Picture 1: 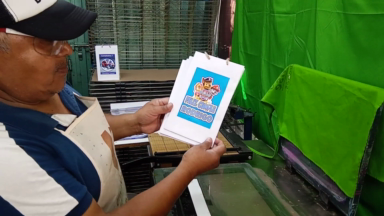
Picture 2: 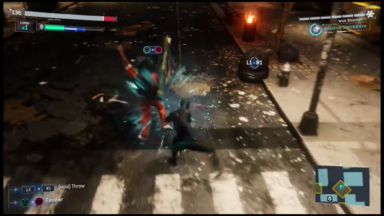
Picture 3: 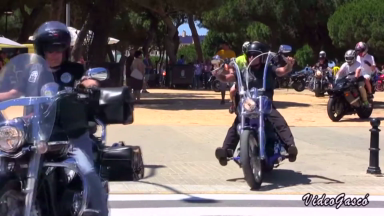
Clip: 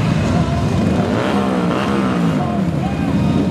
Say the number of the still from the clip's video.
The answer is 3